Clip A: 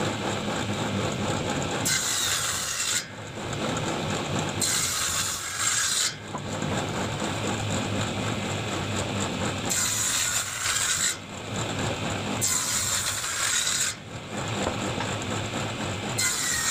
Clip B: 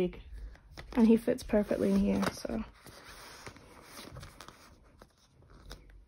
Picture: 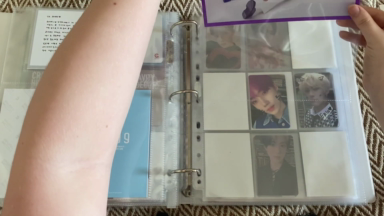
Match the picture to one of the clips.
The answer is B